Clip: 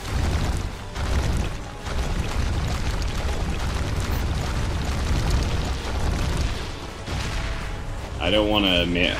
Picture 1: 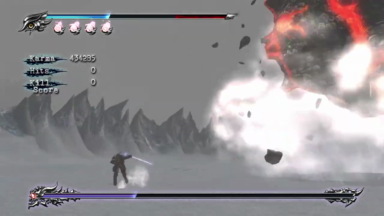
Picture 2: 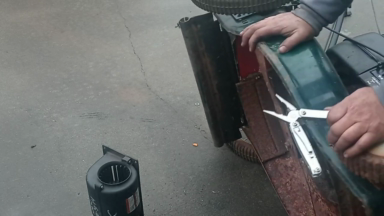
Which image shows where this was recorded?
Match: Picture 1